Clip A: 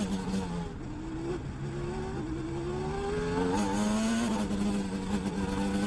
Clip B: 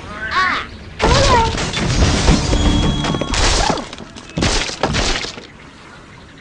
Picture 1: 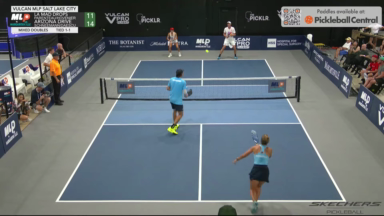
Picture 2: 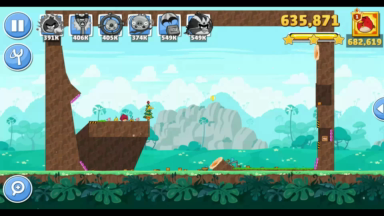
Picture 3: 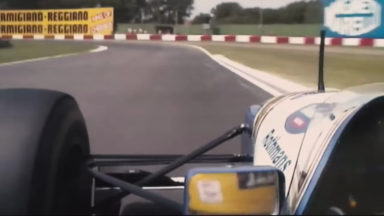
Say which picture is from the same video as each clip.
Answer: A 3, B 2